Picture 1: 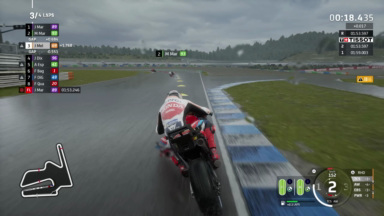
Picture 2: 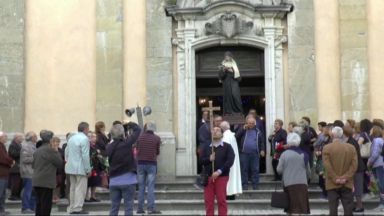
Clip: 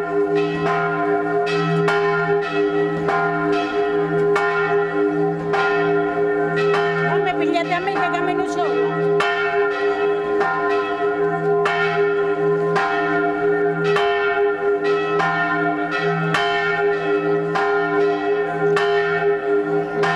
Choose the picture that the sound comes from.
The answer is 2